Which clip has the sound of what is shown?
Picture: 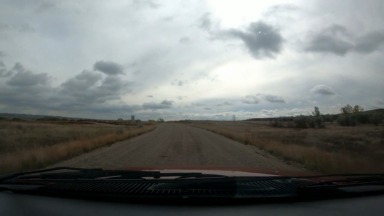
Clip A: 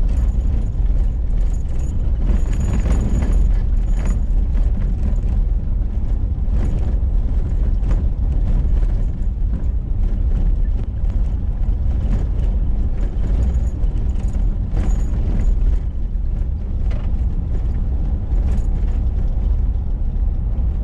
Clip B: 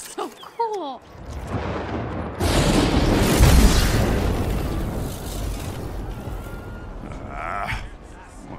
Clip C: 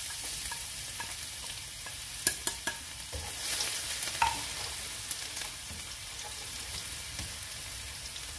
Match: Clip A